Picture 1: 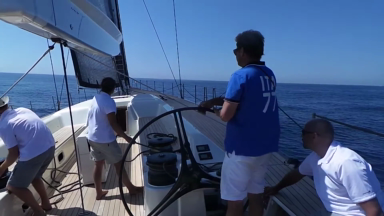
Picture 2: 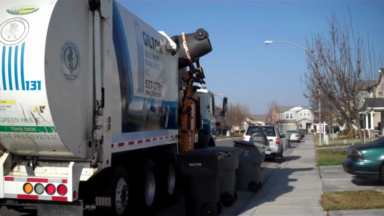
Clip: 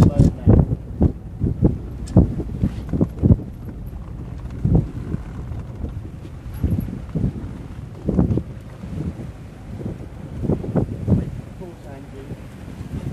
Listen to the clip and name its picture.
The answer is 1